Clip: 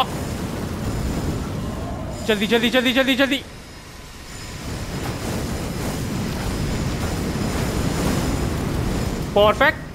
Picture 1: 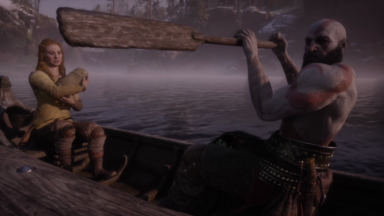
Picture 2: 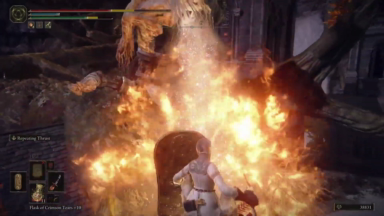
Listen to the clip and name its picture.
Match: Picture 2